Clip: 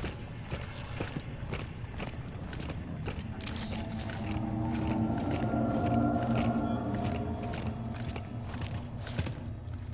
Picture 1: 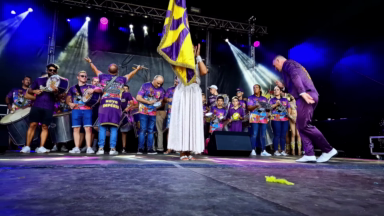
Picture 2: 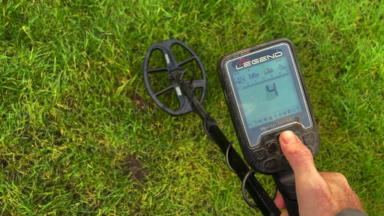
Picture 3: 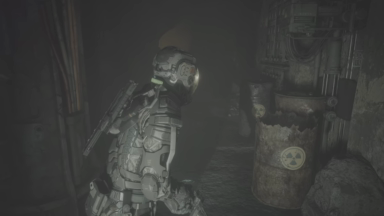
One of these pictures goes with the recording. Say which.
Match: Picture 3